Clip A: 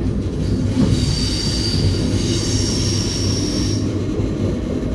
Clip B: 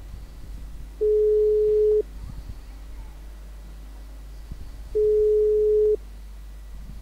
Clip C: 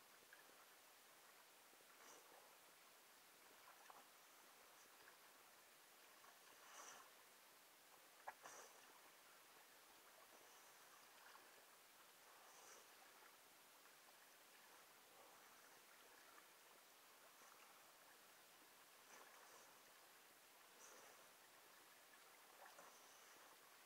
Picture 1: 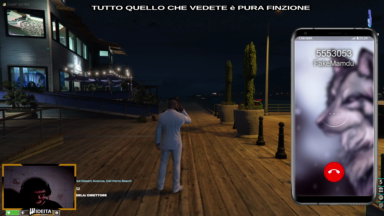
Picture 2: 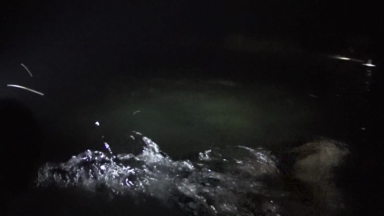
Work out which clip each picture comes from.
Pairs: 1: B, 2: C